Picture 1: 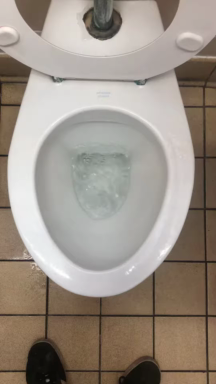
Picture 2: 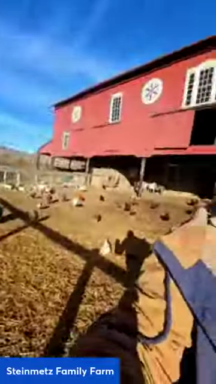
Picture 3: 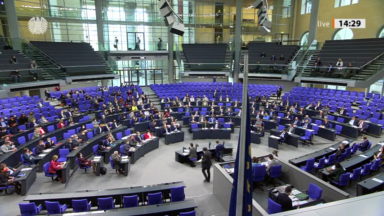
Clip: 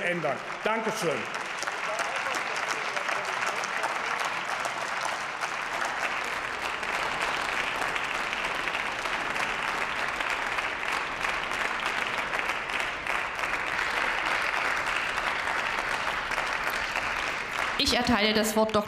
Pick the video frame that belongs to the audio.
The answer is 3